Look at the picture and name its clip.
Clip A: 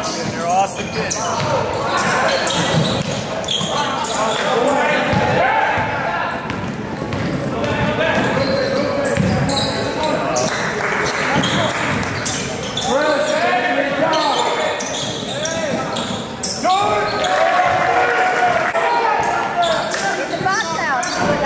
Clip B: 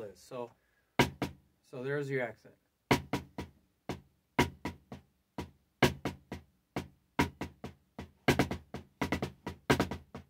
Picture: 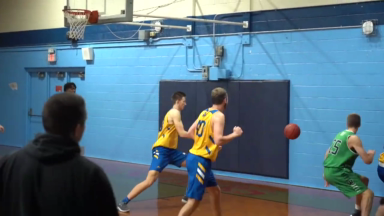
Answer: A